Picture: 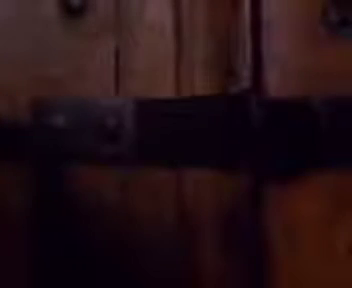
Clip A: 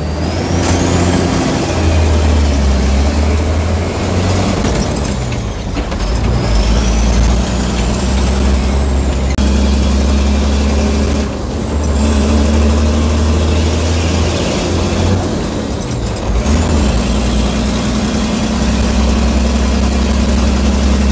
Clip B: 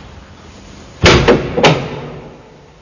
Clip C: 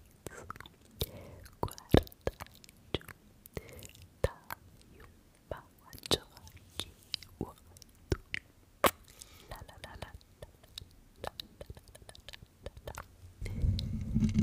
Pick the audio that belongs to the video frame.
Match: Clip B